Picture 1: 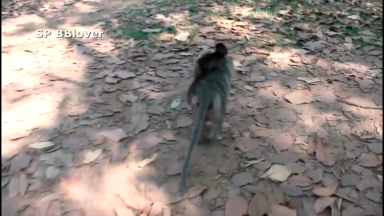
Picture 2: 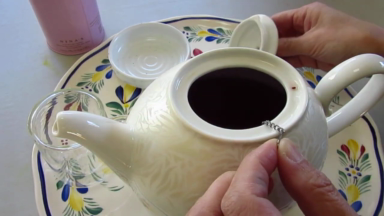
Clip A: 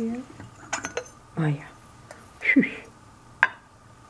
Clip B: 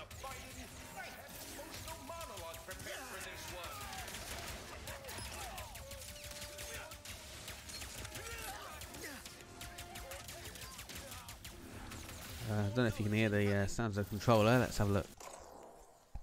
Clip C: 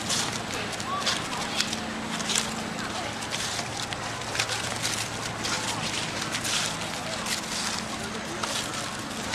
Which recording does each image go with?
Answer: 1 C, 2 A